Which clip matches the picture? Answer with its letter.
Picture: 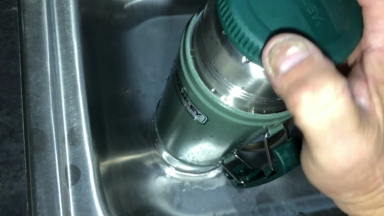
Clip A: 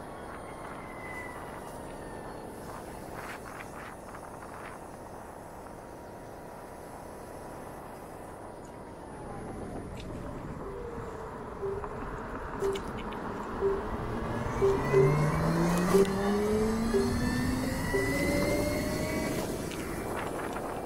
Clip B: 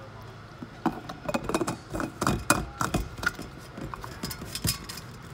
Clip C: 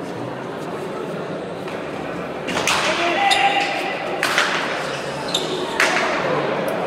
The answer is B